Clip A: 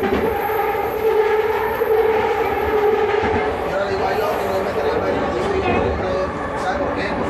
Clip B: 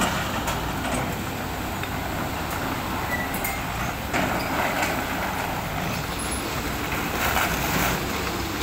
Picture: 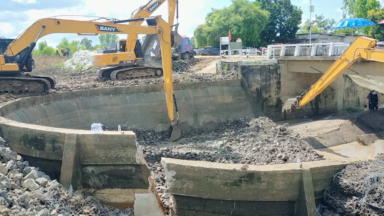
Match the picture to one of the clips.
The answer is B